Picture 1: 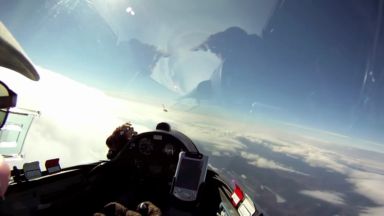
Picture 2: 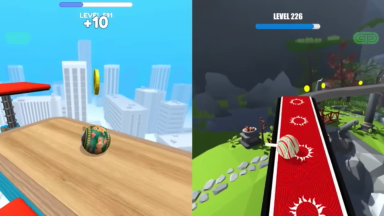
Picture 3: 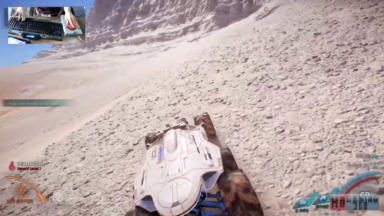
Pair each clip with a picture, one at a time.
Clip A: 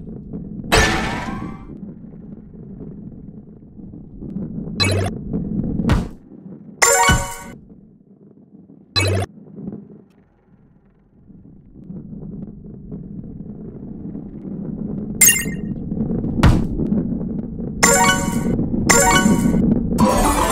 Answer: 2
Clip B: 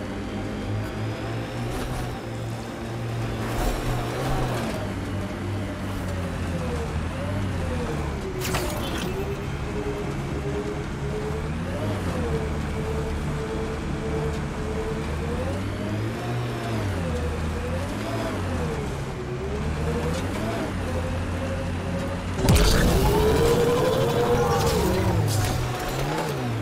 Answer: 3